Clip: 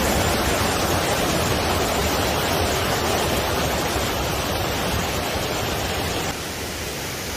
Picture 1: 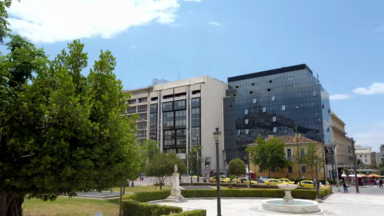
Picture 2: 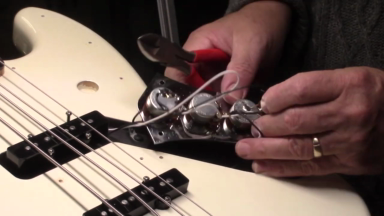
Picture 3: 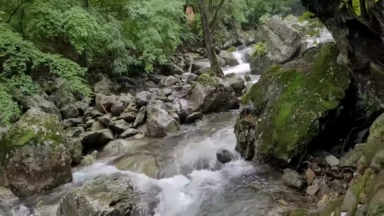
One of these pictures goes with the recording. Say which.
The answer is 3